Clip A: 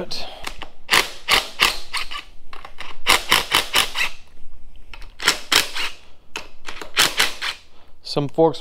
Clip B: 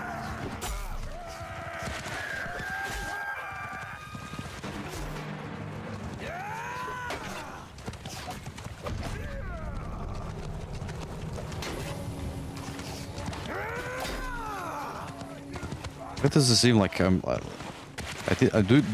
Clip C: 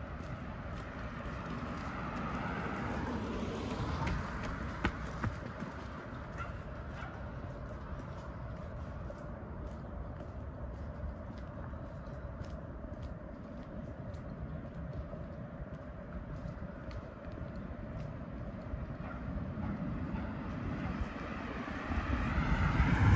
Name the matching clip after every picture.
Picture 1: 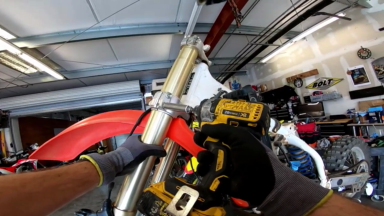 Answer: A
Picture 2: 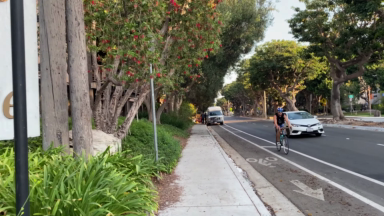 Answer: C